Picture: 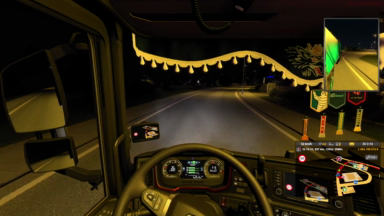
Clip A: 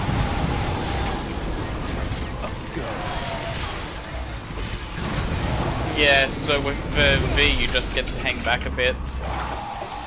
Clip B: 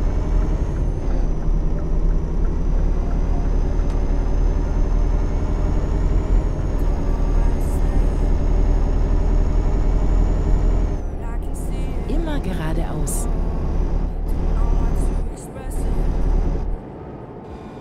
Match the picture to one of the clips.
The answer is B